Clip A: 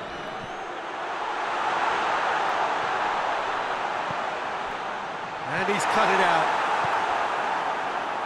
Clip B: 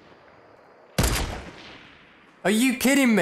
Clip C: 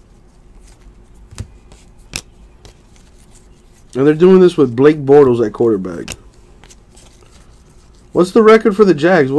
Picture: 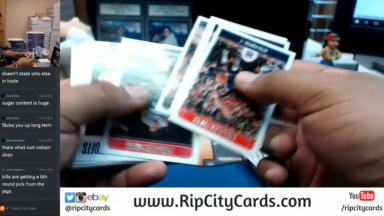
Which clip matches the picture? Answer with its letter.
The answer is C